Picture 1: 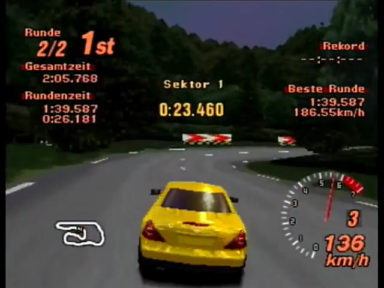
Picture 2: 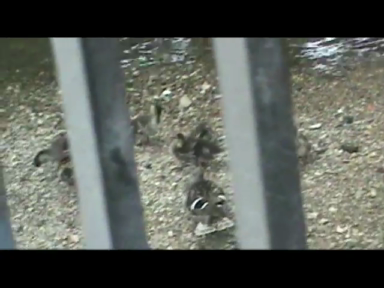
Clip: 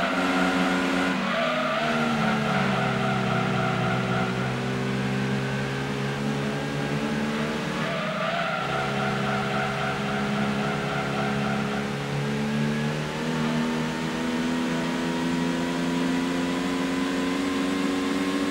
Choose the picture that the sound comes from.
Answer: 1